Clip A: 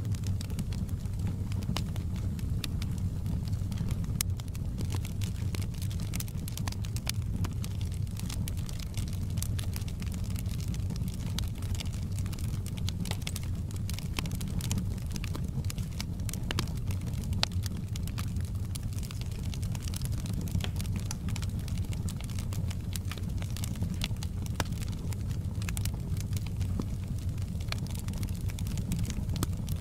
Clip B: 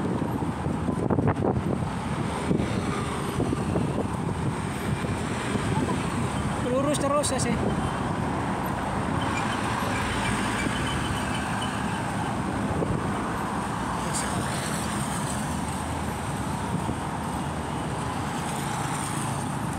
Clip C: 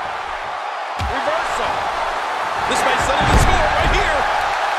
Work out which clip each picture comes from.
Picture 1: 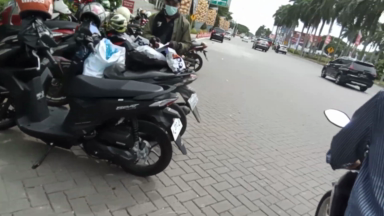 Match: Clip B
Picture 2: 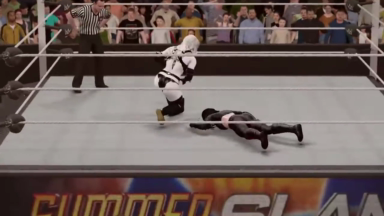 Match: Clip C